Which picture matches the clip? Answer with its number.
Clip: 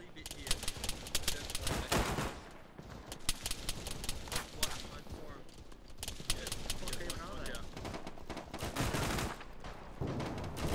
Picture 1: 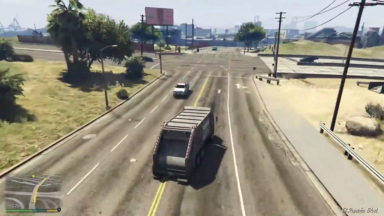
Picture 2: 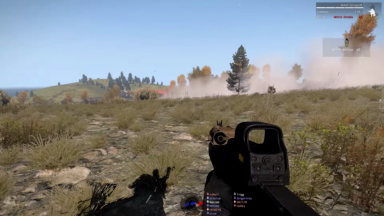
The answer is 2